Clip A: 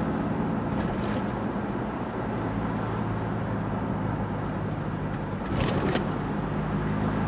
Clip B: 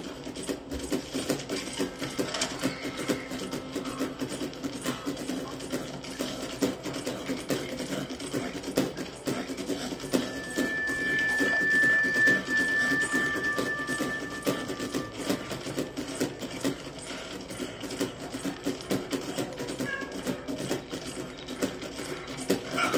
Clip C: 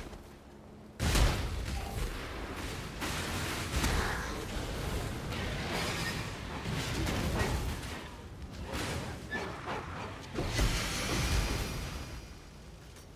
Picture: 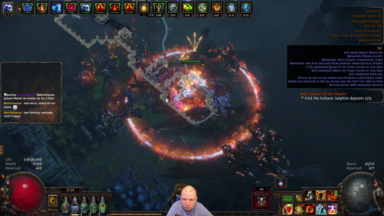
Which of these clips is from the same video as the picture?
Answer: C